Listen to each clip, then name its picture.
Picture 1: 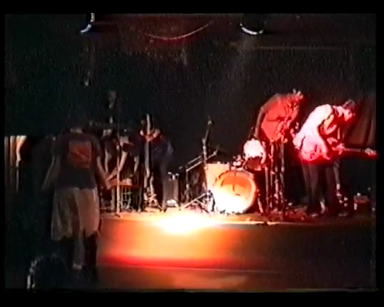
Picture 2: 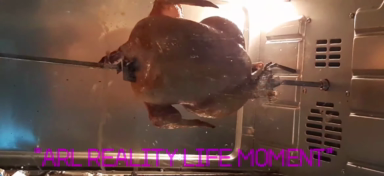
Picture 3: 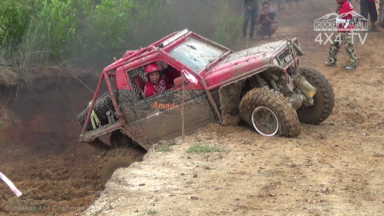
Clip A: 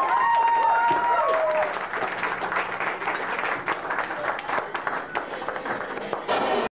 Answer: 1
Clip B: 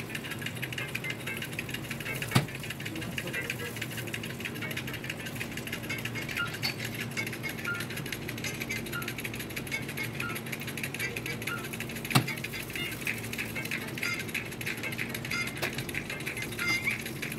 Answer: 2